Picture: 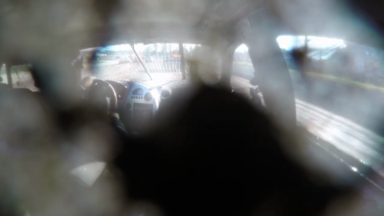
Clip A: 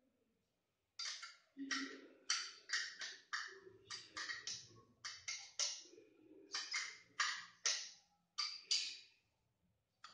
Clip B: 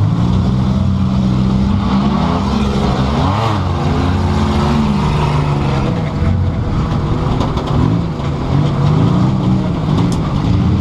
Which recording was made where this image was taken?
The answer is B